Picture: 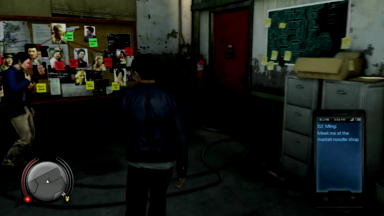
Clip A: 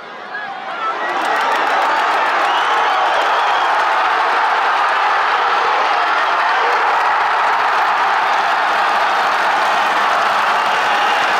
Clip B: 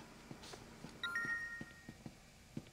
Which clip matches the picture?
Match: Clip B